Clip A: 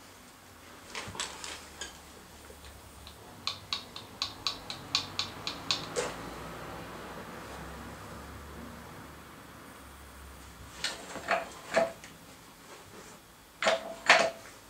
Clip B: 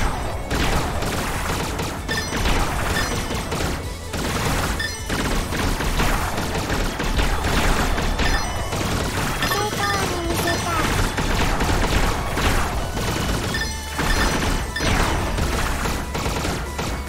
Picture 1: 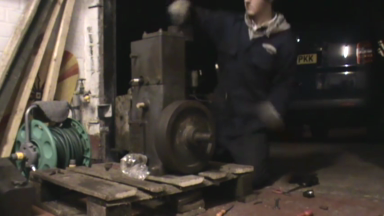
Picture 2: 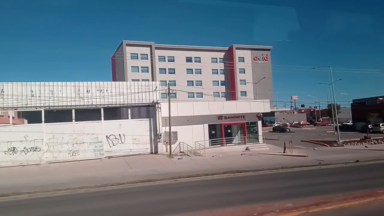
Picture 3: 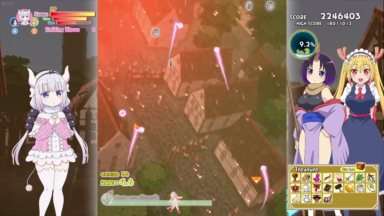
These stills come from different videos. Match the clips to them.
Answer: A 1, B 3